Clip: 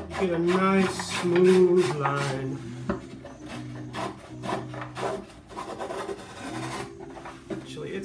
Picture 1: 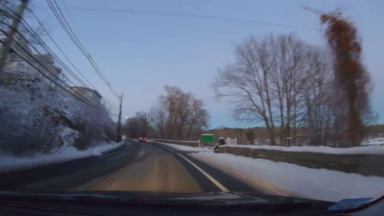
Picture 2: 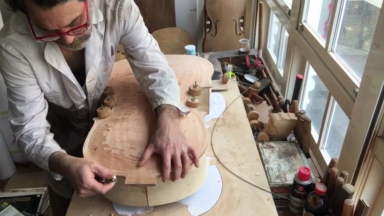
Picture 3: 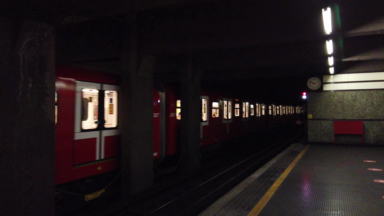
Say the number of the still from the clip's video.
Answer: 2